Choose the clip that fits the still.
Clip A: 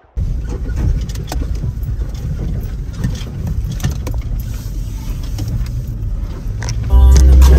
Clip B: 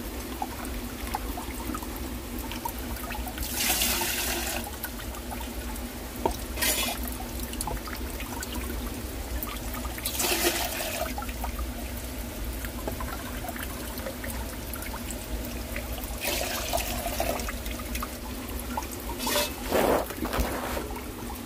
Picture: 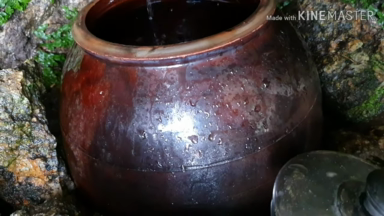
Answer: B